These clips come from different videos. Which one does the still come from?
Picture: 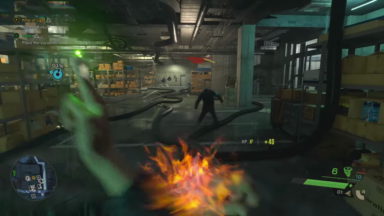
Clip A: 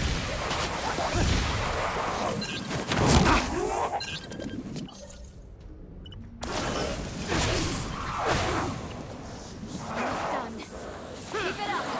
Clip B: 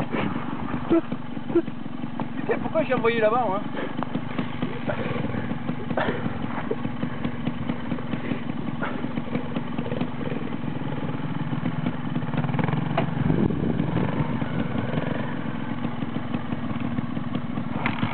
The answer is A